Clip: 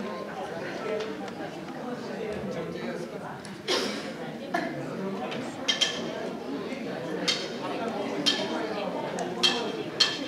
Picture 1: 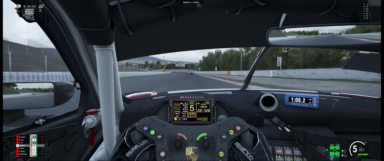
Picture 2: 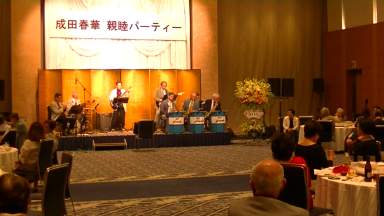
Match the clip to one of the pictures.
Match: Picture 2